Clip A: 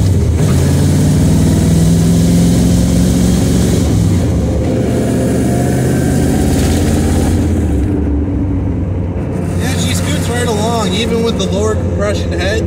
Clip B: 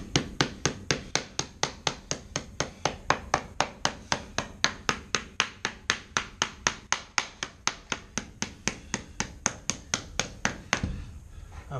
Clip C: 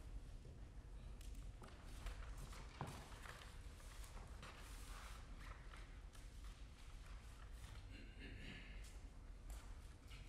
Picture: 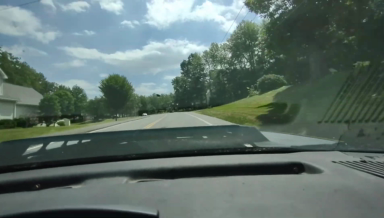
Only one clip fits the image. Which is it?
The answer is A